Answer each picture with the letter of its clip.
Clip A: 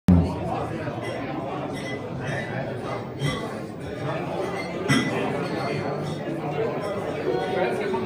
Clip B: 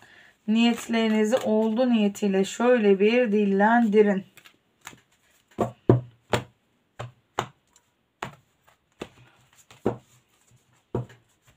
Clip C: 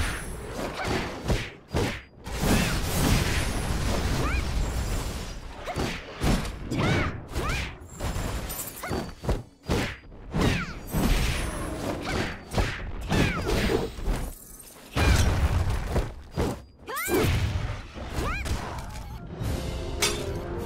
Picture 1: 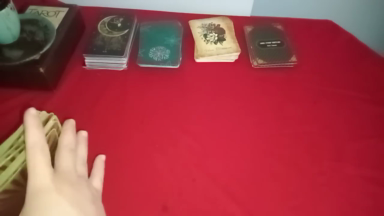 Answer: B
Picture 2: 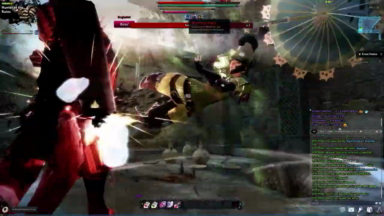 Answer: C